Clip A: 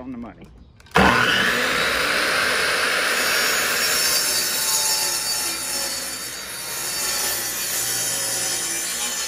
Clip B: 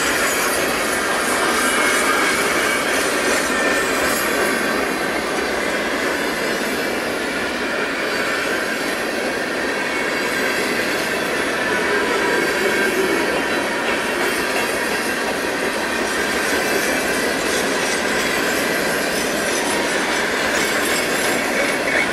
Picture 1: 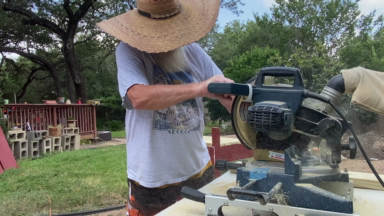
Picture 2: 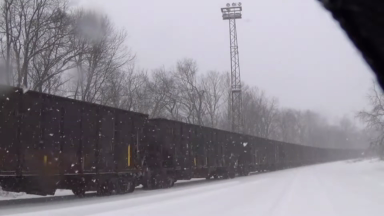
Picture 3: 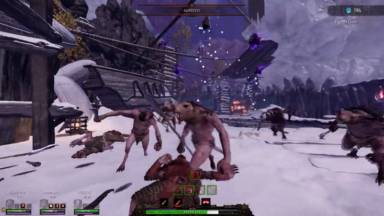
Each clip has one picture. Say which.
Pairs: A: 1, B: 2